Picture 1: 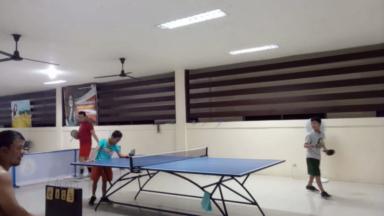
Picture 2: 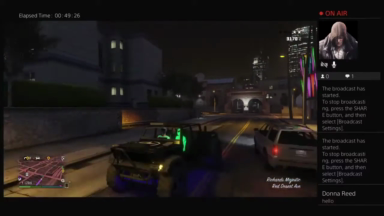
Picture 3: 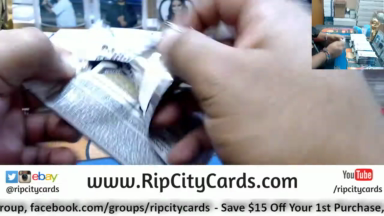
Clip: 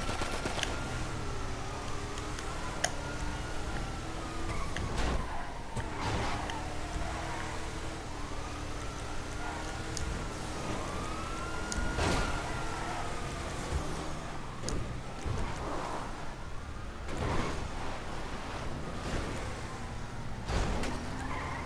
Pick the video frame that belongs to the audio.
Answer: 2